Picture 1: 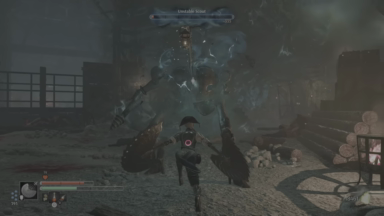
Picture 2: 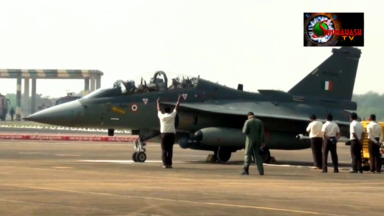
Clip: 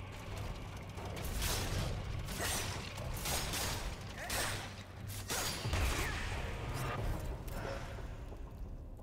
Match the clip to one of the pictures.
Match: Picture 1